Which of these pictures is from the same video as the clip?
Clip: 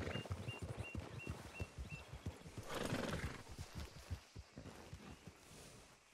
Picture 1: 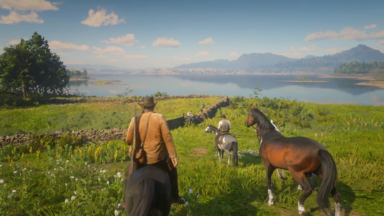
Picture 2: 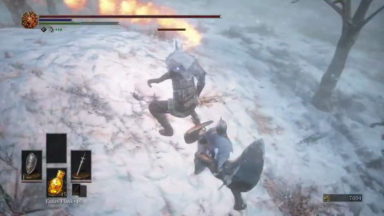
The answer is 1